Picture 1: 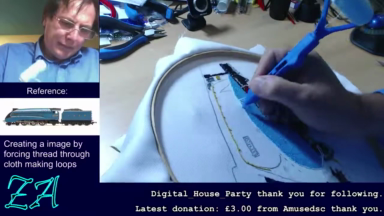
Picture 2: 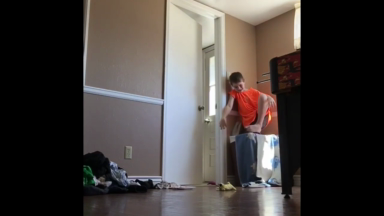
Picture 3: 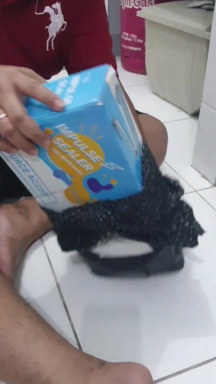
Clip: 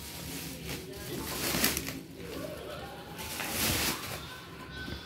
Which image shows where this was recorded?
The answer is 3